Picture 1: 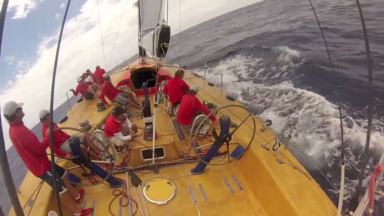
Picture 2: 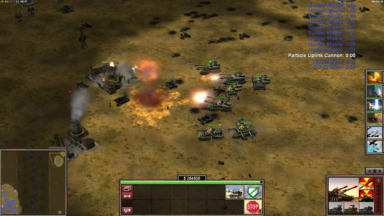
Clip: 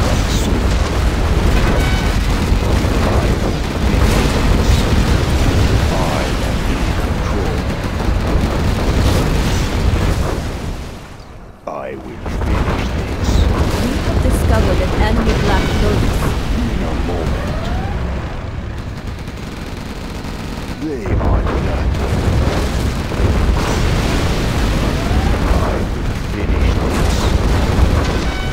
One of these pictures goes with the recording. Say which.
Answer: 2